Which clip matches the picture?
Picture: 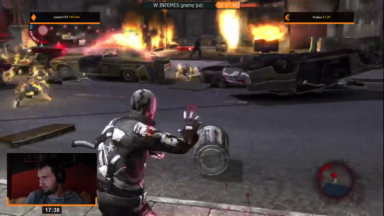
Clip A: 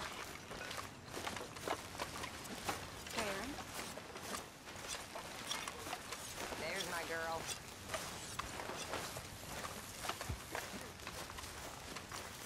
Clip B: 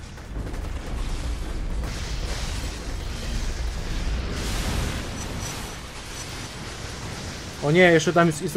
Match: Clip B